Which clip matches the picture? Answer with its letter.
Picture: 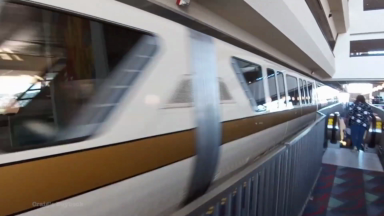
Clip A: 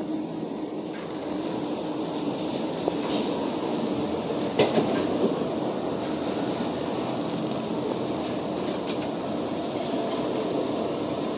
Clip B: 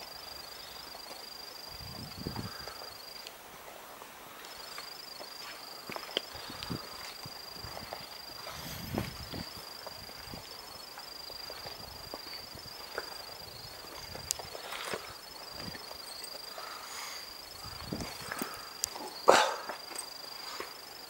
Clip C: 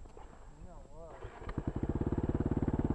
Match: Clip A